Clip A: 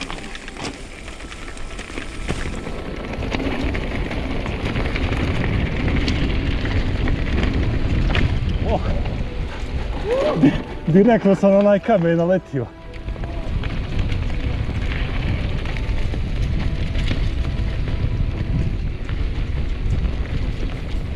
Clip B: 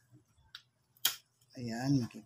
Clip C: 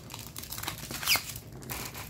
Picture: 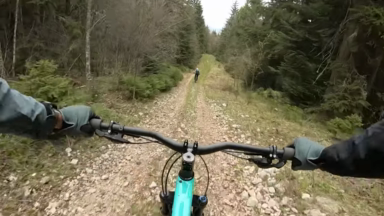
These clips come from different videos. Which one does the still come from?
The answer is A